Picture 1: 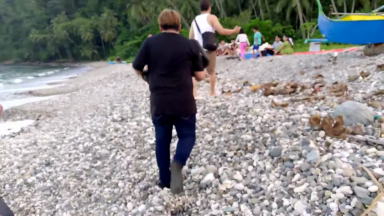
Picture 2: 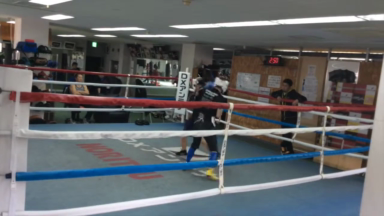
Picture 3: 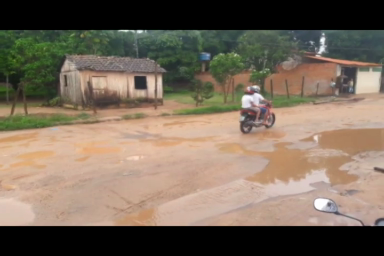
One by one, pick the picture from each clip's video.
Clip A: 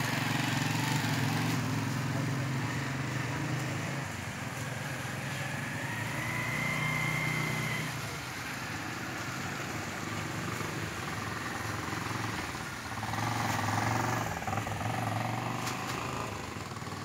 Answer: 3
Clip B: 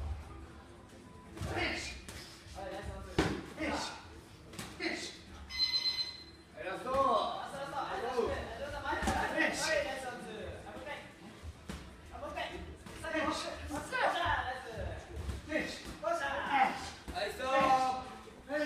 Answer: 2